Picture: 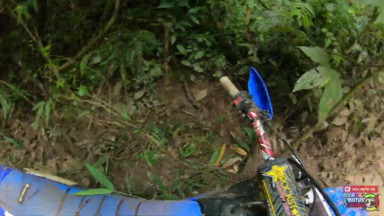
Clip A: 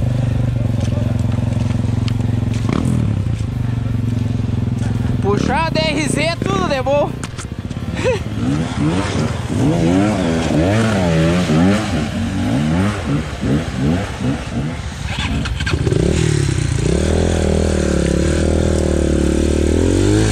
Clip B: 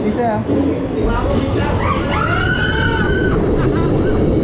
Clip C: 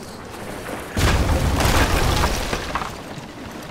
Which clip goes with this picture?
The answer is A